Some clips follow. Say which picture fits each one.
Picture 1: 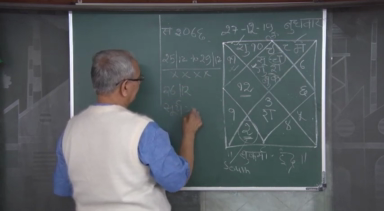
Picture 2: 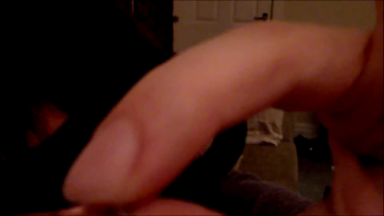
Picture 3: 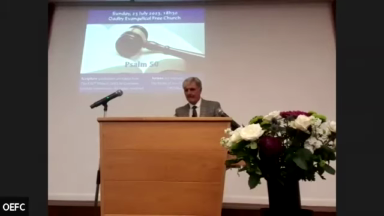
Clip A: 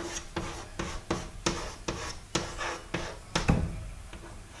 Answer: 1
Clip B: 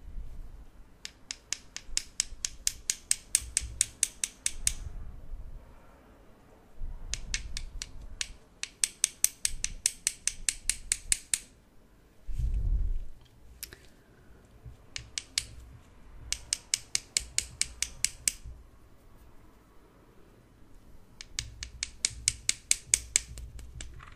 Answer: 2